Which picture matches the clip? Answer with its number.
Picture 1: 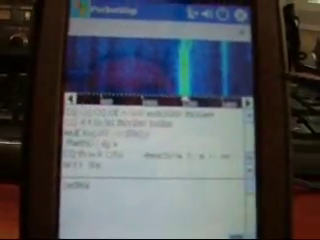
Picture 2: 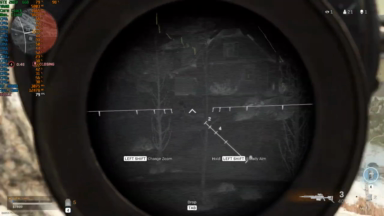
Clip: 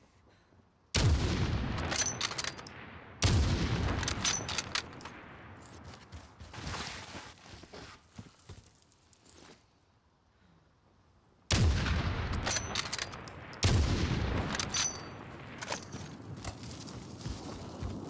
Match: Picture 2